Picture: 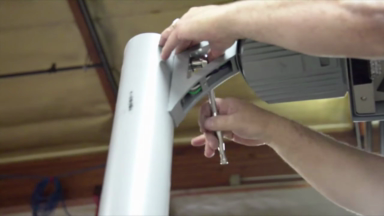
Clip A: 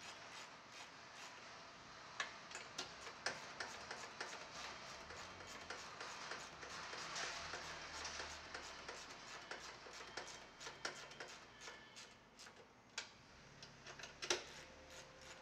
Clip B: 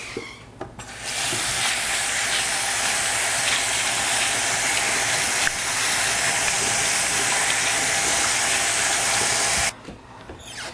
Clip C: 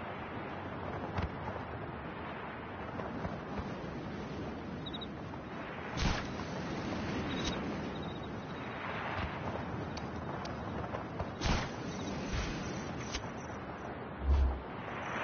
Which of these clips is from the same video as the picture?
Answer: A